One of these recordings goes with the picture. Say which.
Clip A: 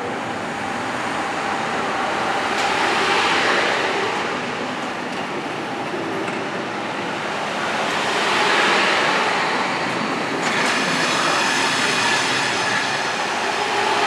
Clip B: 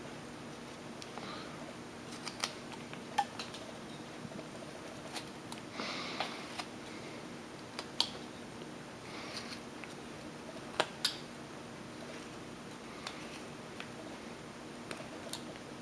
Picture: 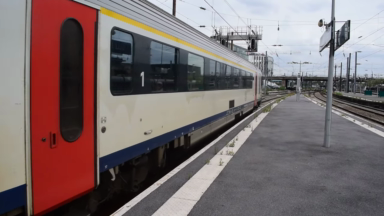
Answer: A